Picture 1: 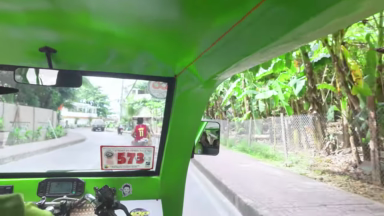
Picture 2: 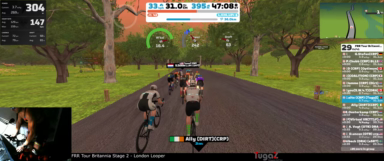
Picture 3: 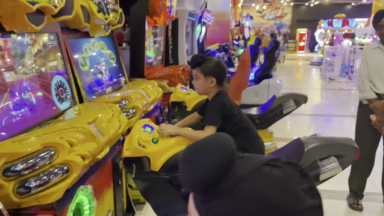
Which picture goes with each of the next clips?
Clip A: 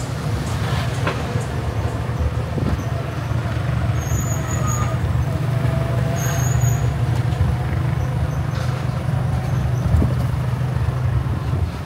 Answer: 1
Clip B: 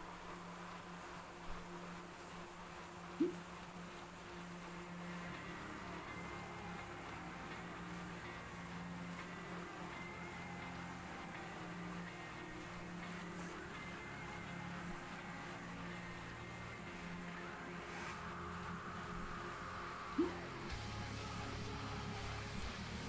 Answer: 2